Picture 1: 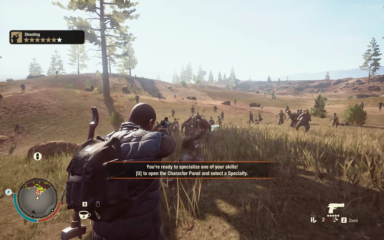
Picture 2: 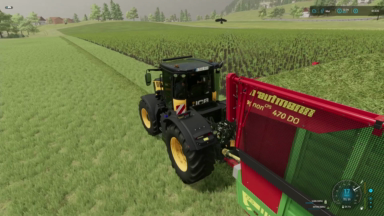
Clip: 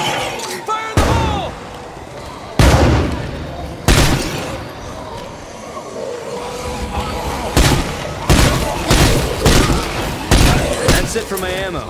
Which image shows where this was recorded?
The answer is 1